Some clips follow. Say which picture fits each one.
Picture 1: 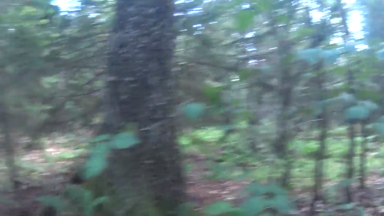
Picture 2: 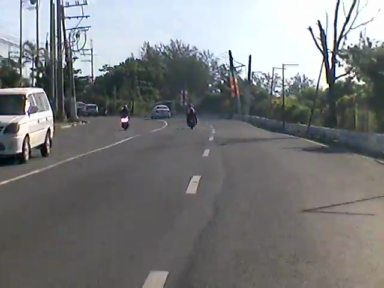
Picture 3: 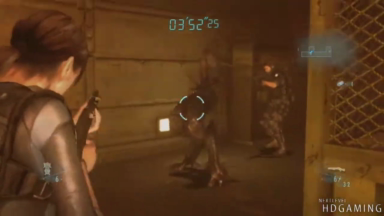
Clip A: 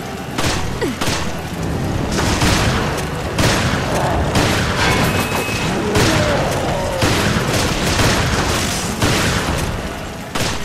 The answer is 3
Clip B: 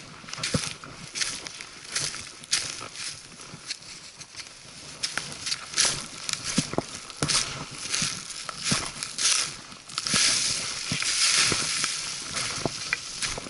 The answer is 1